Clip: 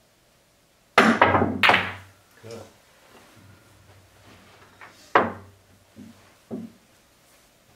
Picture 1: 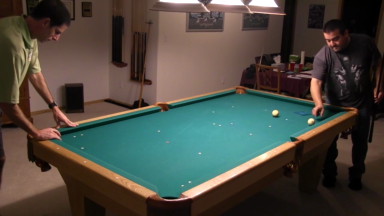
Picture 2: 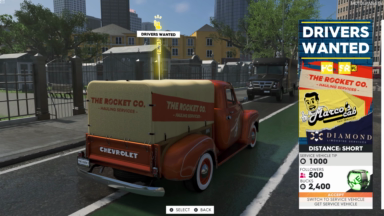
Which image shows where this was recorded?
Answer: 1